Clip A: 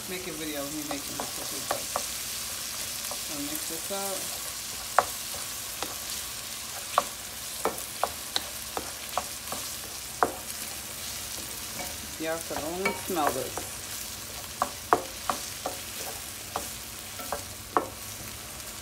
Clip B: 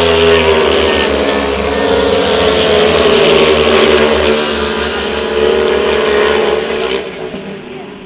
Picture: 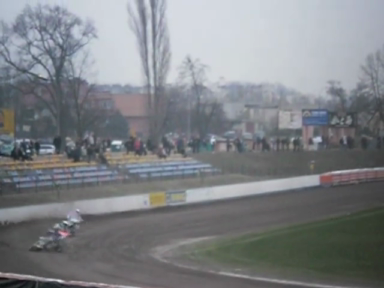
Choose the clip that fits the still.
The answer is B